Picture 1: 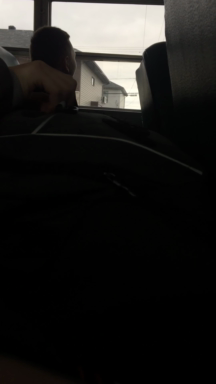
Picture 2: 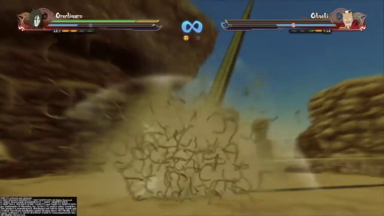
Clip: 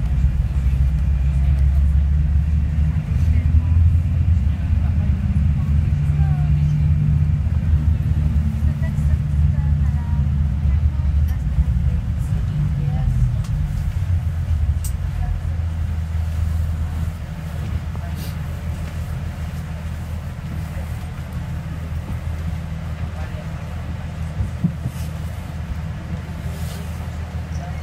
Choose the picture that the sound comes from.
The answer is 1